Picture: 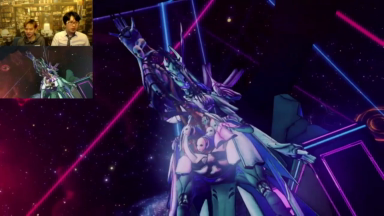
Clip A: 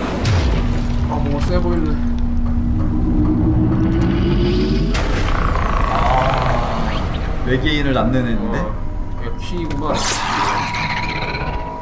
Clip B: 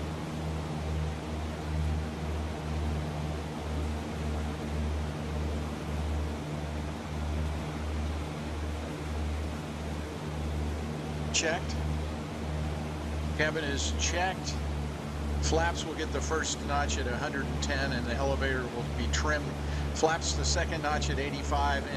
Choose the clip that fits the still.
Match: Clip A